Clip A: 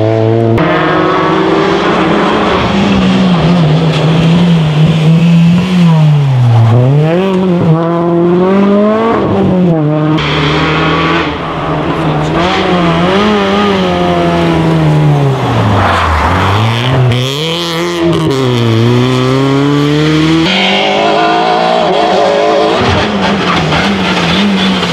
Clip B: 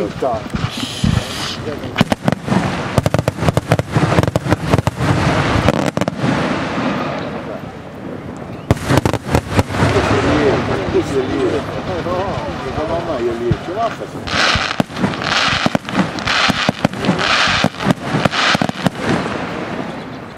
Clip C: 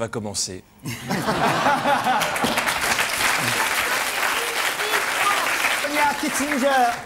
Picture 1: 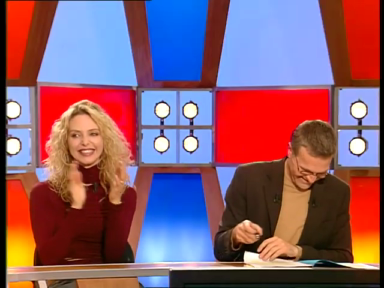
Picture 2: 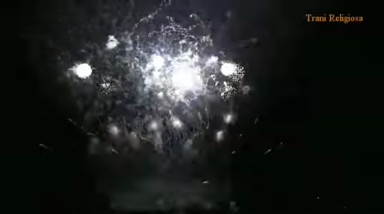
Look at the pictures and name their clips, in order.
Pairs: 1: C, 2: B